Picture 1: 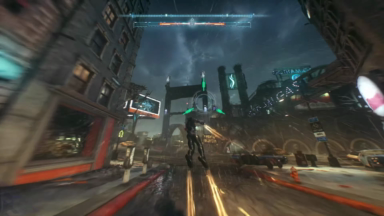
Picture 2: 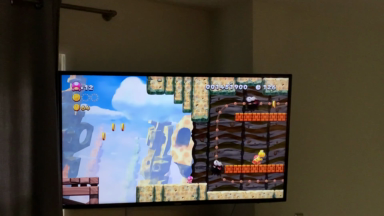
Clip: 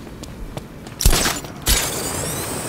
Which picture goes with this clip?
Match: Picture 1